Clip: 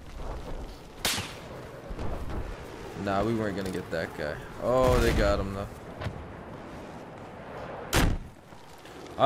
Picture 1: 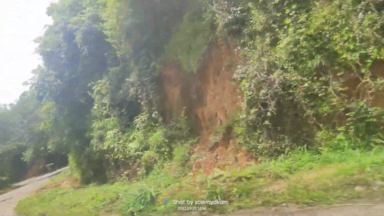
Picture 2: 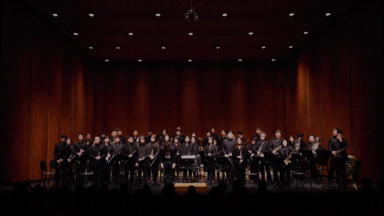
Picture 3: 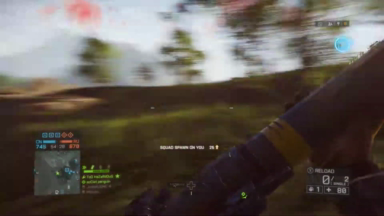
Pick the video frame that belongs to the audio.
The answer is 3